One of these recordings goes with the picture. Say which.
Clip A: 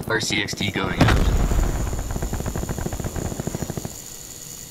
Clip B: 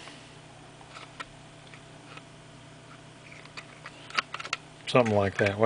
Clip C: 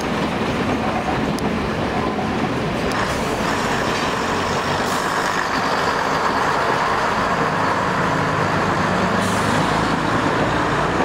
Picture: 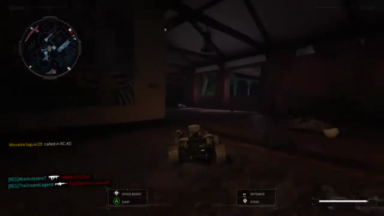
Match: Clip A